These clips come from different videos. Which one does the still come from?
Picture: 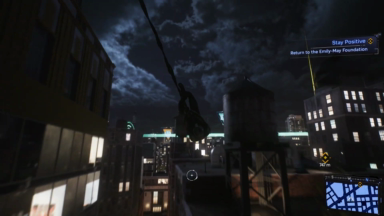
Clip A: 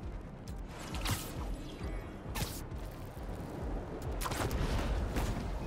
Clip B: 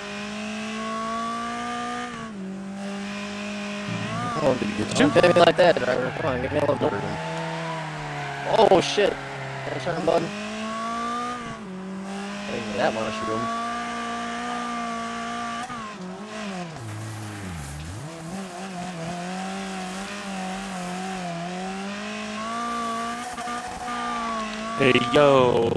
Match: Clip A